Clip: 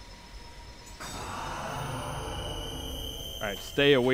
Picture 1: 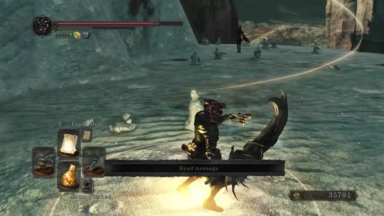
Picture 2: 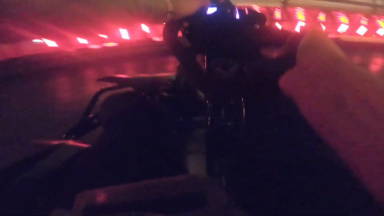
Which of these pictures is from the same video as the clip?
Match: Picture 1